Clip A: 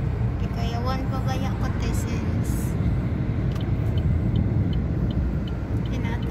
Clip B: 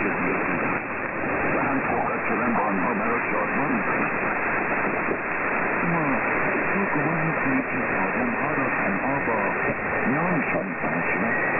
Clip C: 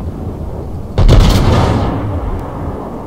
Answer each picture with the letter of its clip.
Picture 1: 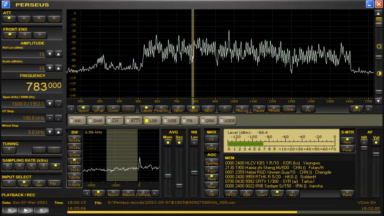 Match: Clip B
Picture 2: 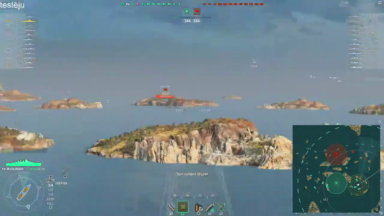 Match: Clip C